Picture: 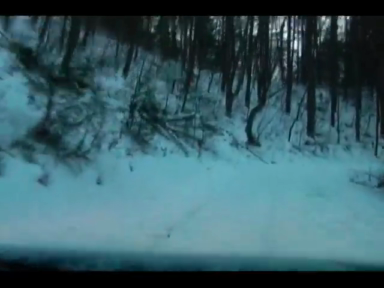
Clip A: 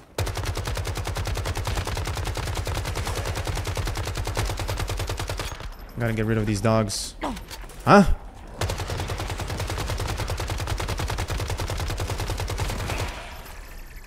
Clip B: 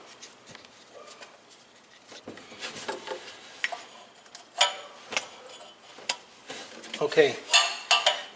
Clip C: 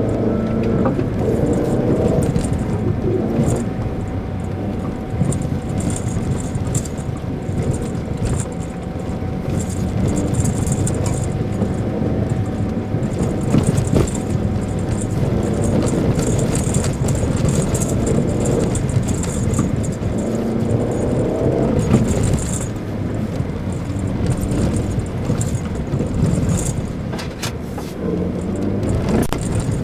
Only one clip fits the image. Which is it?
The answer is C